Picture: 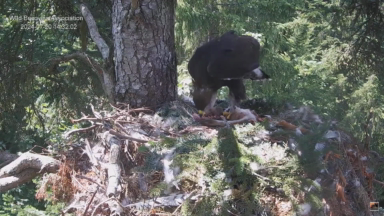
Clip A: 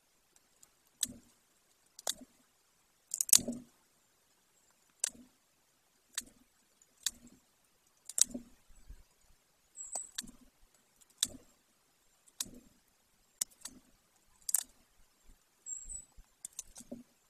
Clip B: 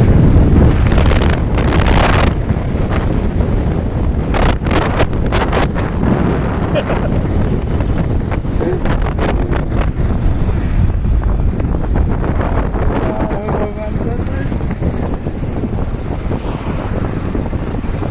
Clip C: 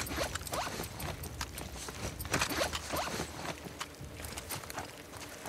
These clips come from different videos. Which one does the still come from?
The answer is A